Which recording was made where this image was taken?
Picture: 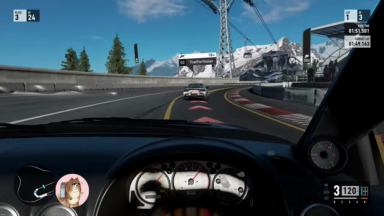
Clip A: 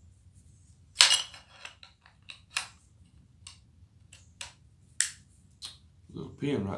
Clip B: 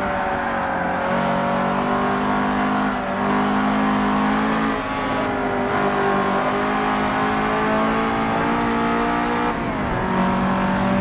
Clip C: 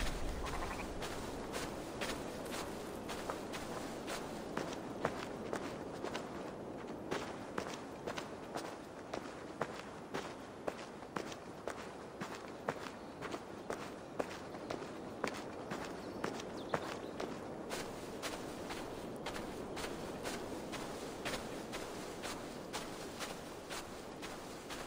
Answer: B